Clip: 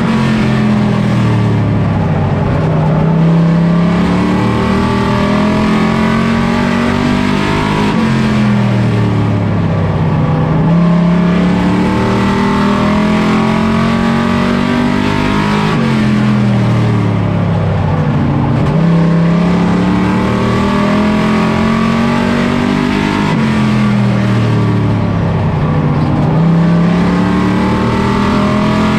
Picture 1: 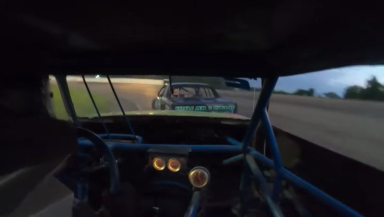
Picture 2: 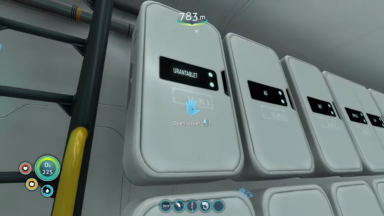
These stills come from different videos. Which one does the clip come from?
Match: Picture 1